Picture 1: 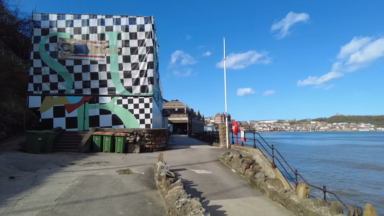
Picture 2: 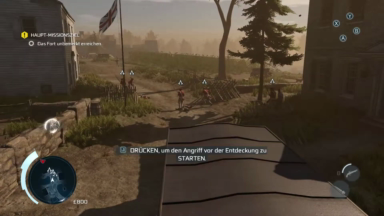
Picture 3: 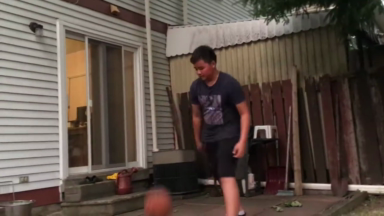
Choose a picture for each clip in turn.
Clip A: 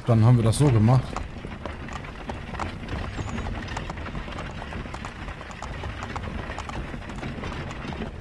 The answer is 2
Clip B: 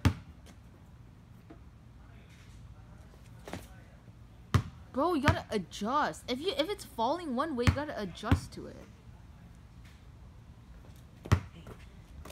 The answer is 3